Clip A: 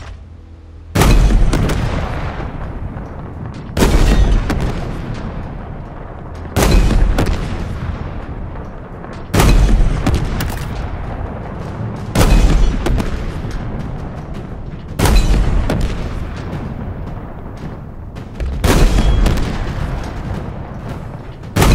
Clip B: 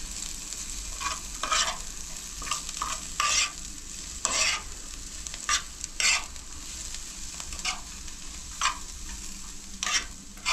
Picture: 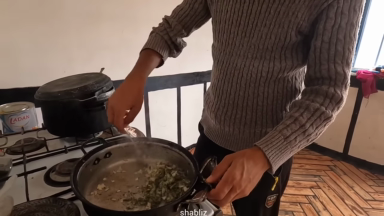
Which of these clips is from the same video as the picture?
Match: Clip B